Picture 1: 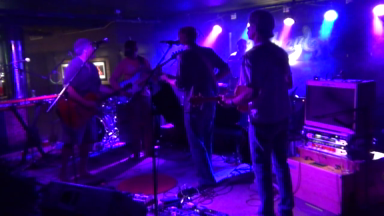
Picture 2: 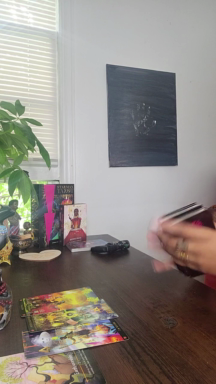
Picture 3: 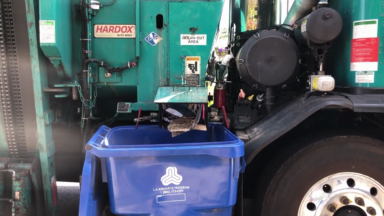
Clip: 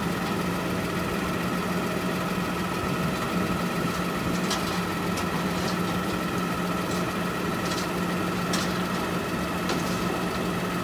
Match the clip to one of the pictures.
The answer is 3